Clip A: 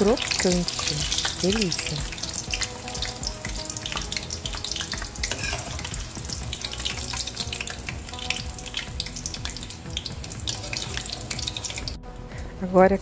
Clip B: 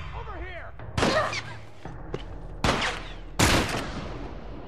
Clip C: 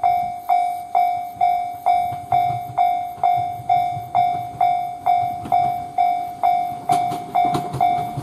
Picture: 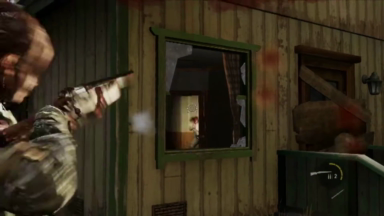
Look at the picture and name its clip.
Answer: B